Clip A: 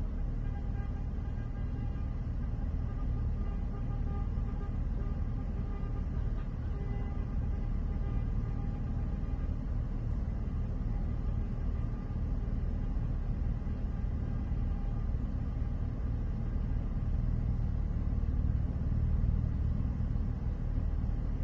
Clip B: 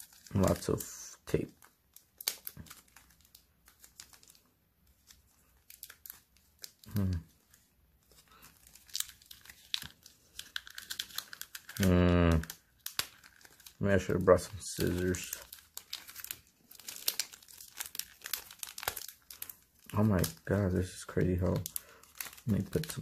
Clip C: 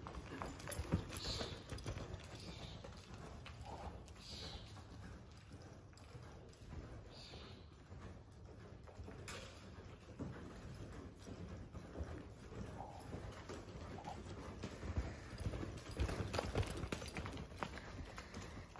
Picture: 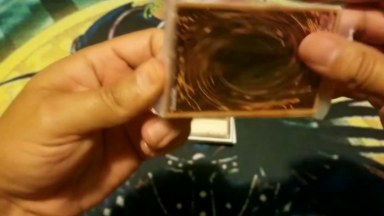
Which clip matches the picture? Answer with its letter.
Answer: B